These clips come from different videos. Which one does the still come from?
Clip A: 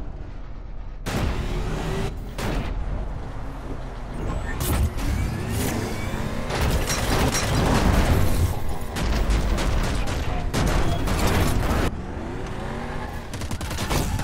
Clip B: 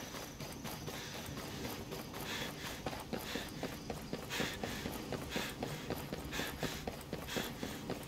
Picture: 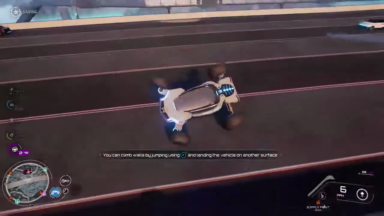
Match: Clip A